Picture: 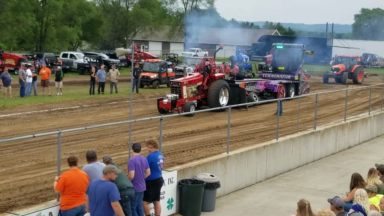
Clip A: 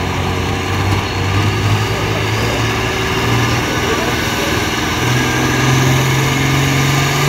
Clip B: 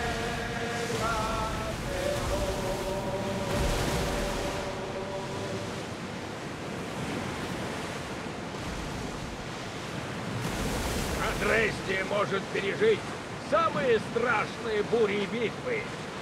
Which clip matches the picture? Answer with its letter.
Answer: A